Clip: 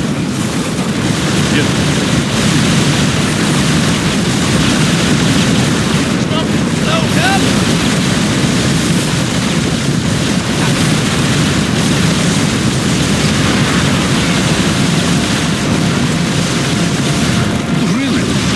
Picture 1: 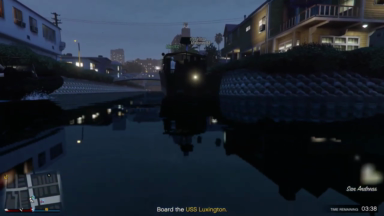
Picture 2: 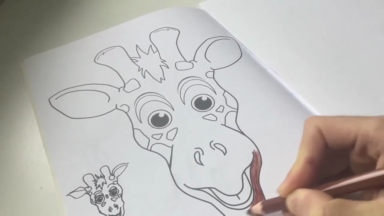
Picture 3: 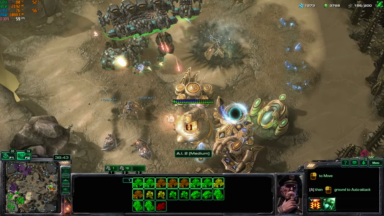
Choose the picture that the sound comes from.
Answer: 3